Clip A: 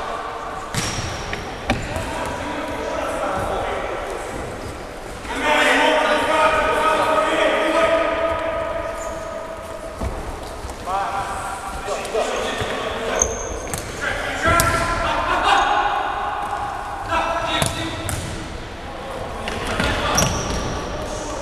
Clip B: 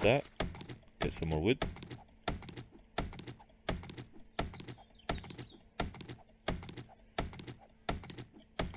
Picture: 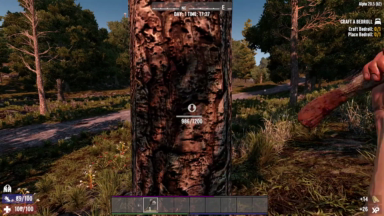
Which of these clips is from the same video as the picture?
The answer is B